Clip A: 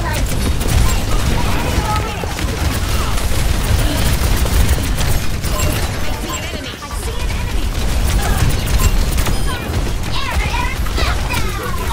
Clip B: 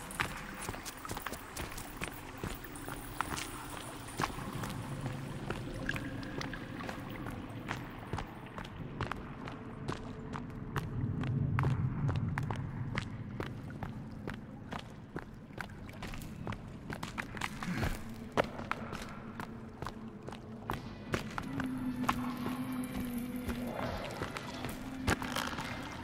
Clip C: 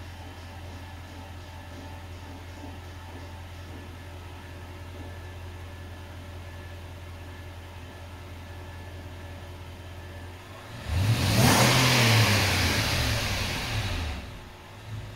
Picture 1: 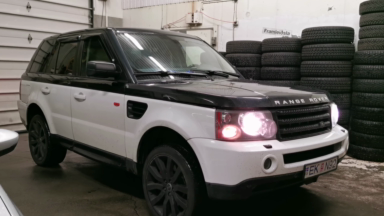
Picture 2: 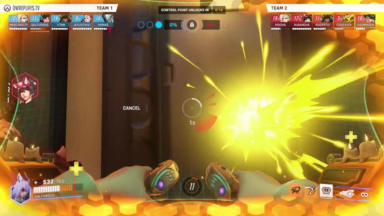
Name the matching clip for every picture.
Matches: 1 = C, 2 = A